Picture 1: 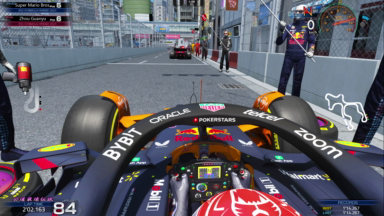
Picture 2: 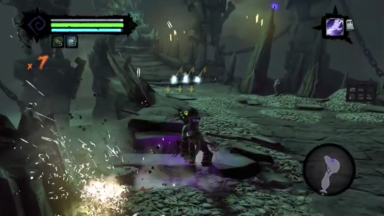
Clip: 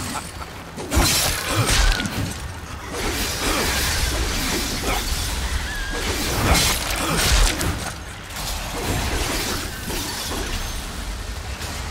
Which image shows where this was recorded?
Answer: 2